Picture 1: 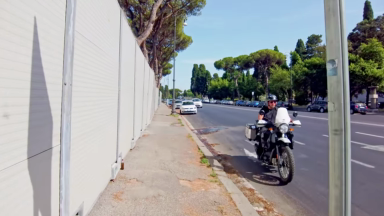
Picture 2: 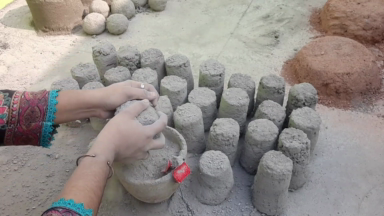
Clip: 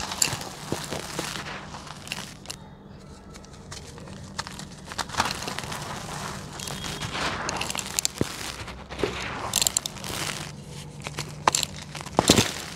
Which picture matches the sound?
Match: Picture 2